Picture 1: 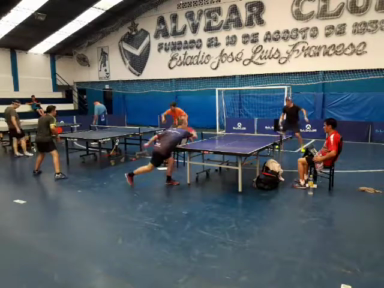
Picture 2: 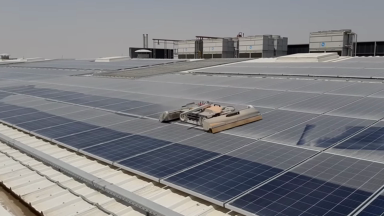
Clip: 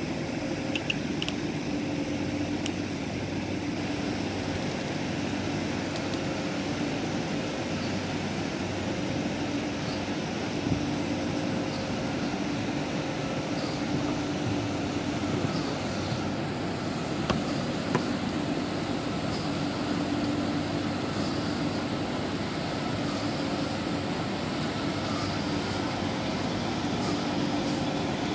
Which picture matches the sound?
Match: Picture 2